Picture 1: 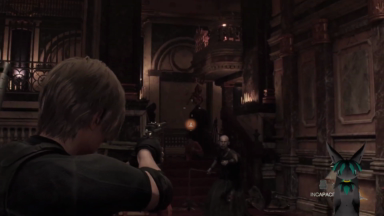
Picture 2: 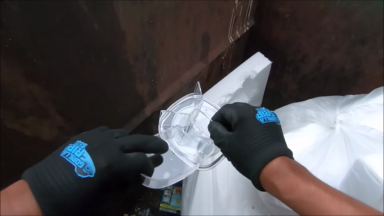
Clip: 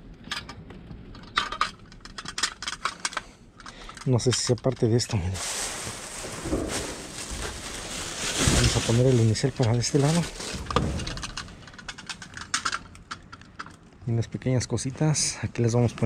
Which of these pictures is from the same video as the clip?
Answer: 2